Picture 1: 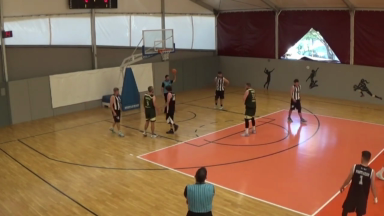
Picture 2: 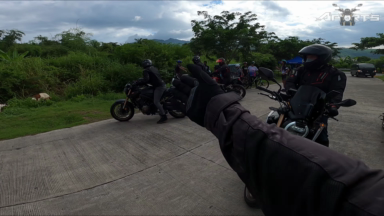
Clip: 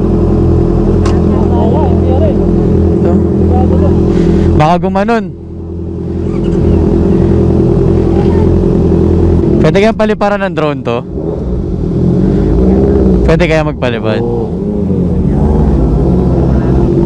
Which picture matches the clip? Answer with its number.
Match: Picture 2